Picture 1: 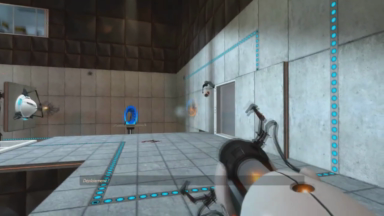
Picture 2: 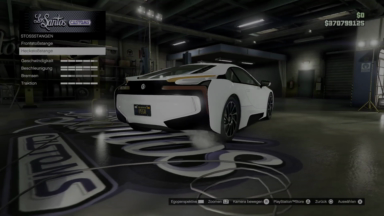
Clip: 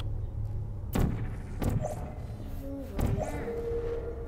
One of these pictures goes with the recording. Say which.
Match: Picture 1